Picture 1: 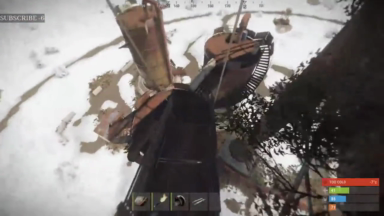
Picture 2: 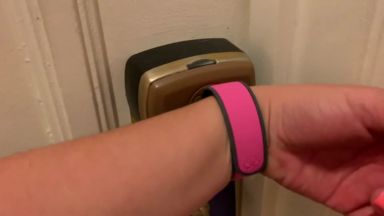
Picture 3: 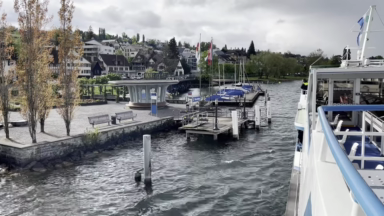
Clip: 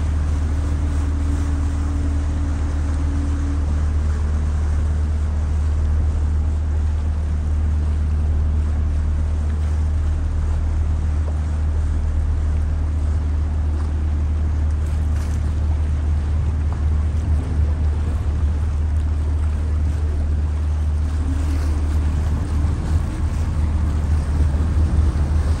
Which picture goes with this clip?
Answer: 3